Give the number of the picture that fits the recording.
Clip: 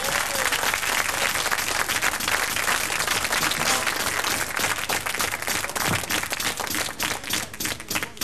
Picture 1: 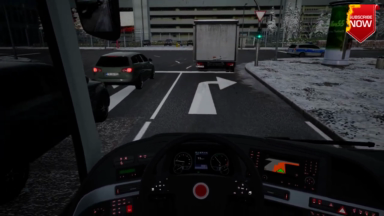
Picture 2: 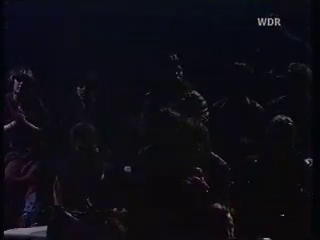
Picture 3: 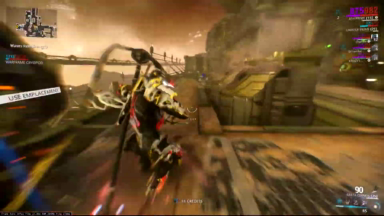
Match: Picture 2